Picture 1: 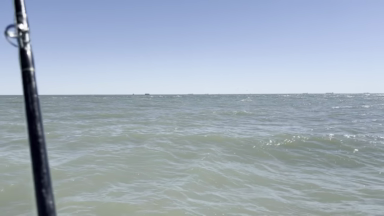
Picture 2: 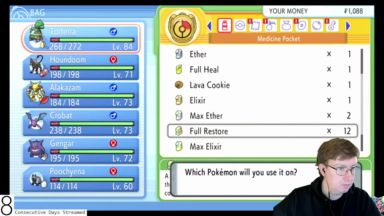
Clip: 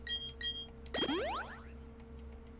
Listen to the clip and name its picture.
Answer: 2